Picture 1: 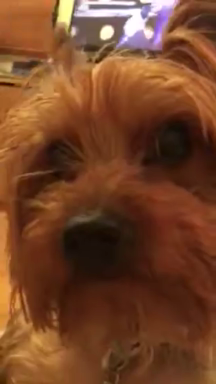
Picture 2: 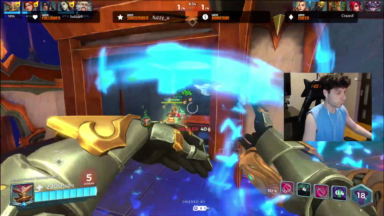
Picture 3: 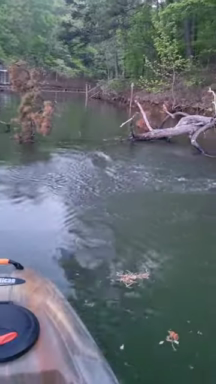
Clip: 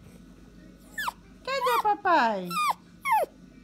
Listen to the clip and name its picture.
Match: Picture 1